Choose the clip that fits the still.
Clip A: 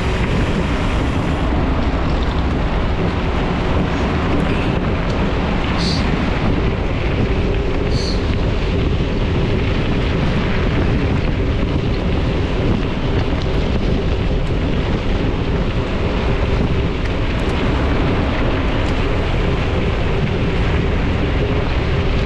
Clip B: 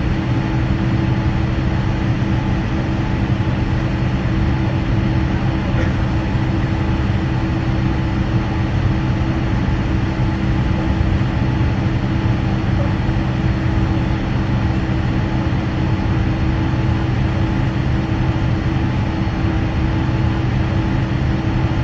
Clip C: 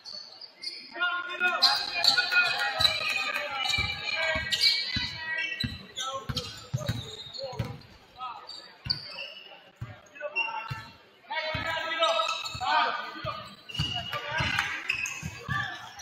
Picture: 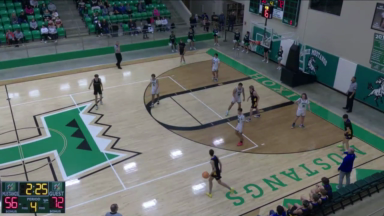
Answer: C